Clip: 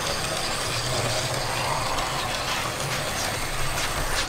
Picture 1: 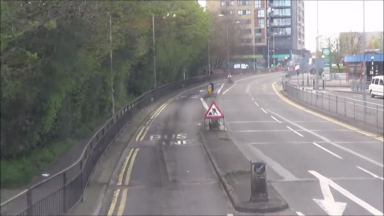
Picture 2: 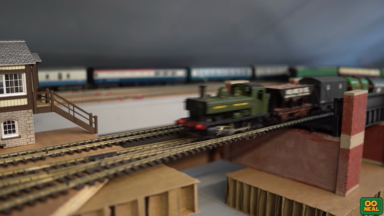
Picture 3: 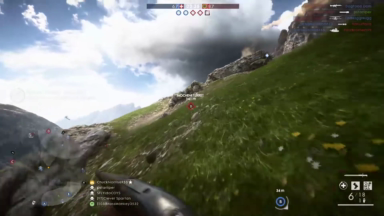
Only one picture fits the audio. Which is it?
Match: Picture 2